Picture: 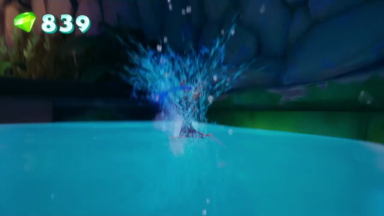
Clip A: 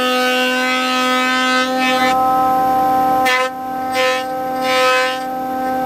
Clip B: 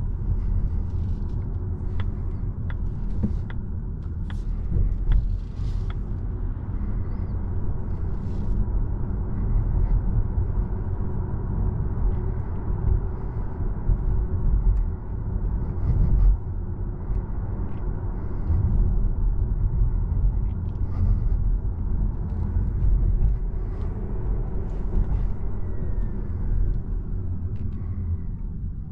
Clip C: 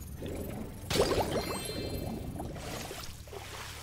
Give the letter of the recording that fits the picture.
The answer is C